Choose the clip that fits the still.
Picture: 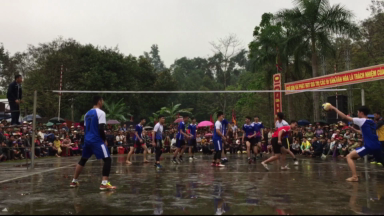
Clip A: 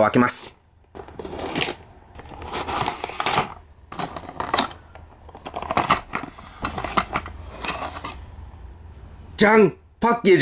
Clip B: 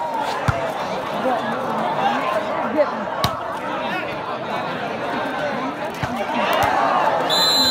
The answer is B